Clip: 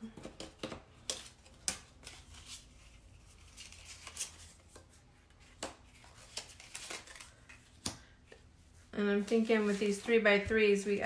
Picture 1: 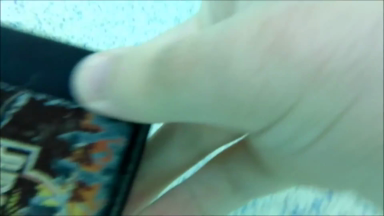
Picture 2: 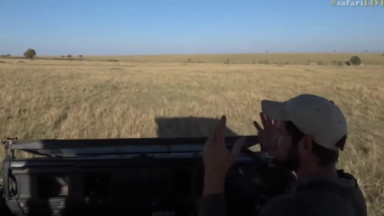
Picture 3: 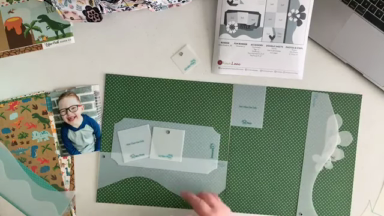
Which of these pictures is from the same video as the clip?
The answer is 3